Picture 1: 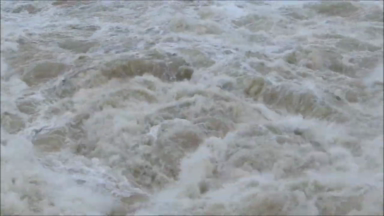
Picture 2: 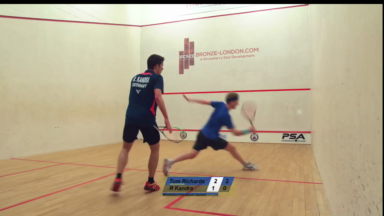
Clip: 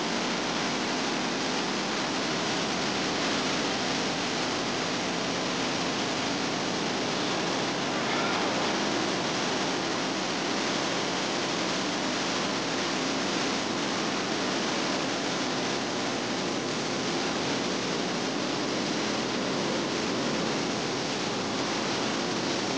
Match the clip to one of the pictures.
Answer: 1